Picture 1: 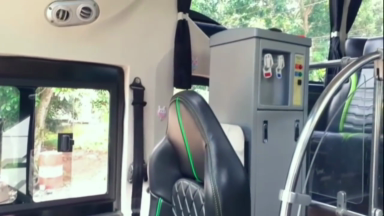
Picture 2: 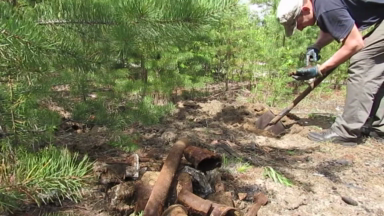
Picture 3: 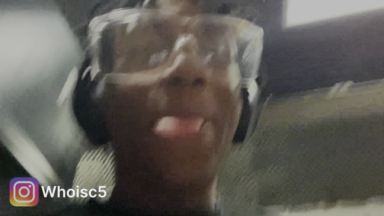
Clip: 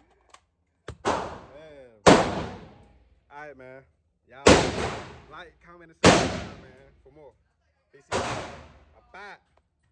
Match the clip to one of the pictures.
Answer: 3